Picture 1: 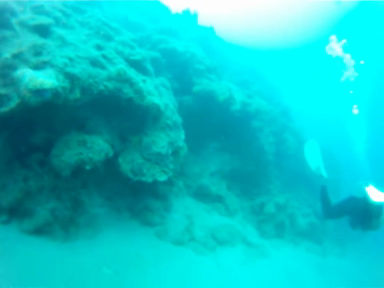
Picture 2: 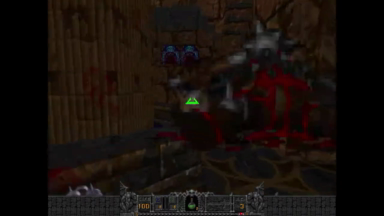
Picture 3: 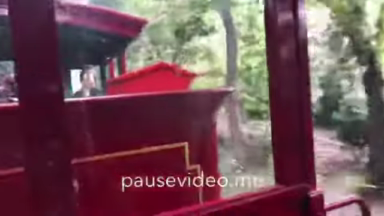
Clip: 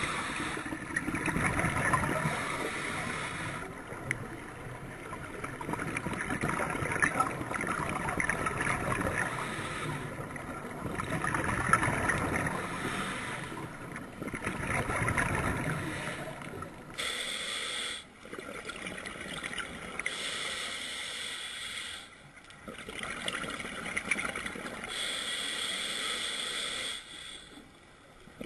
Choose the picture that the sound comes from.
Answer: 1